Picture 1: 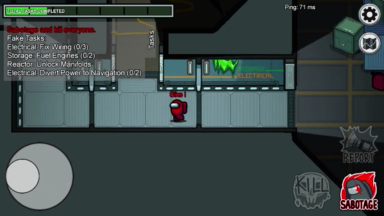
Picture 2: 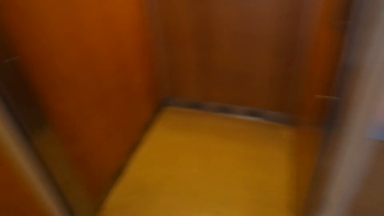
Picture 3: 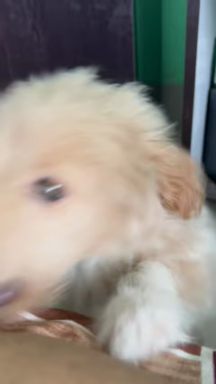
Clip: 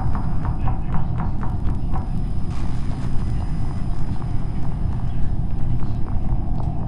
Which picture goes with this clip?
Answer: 1